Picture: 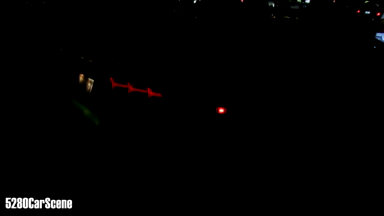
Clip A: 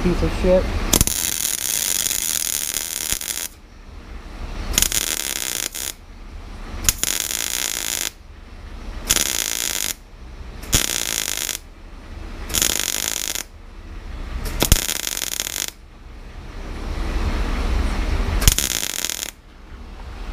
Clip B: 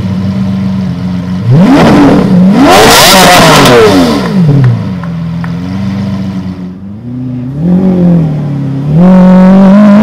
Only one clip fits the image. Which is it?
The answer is B